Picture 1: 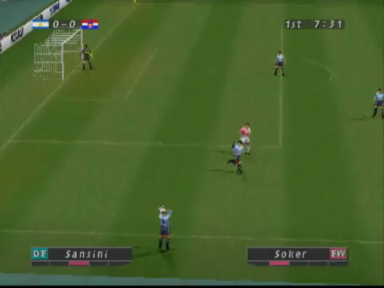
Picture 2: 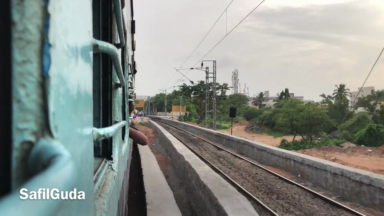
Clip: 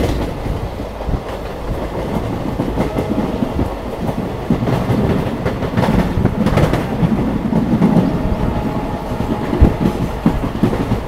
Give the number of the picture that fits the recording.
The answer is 2